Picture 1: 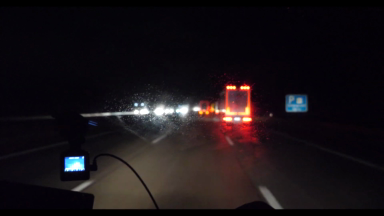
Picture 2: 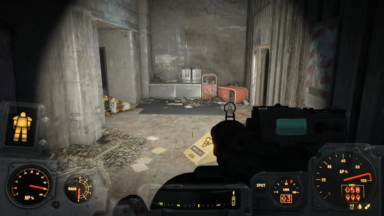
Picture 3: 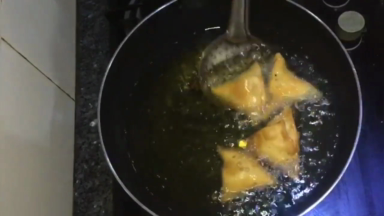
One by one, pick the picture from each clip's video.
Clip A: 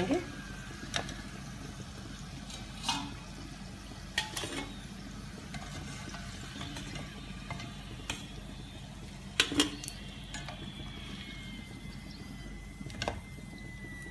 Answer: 3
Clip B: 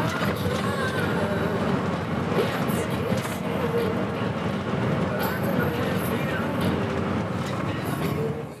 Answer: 1